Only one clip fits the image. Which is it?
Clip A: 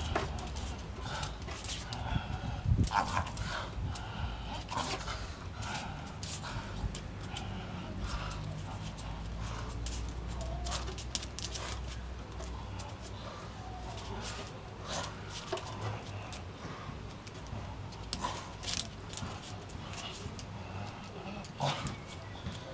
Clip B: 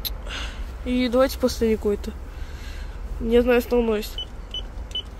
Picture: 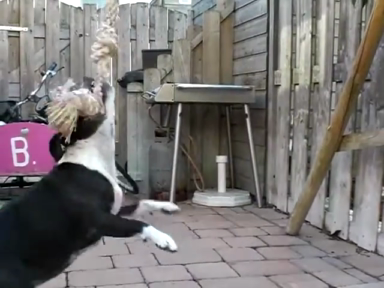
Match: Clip A